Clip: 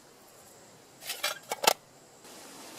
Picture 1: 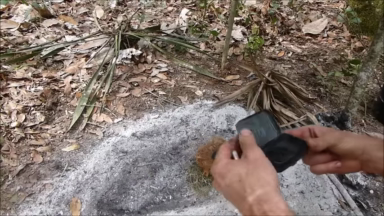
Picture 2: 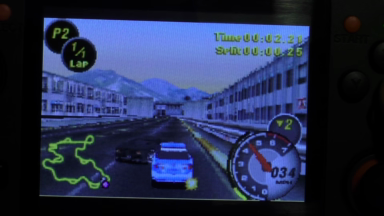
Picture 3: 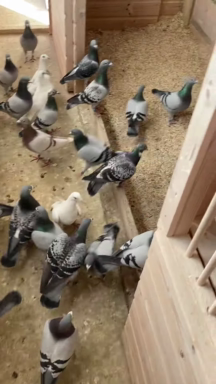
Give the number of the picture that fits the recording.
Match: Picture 1